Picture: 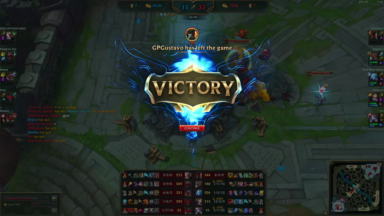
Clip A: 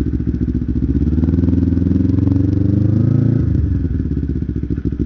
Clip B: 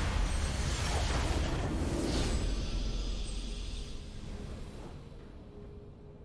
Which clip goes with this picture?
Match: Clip B